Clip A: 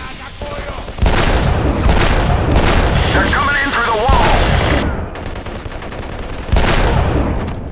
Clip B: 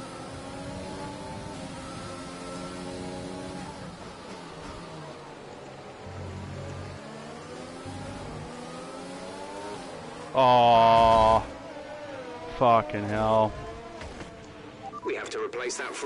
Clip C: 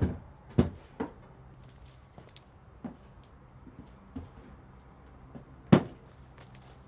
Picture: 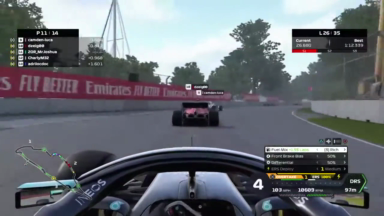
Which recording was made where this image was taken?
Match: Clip B